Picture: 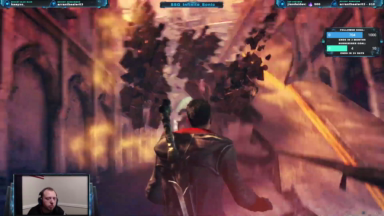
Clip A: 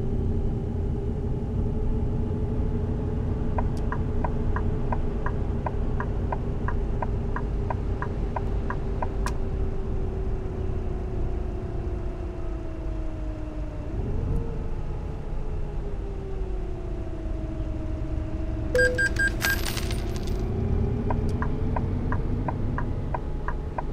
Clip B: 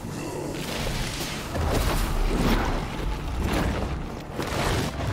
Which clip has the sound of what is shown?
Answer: B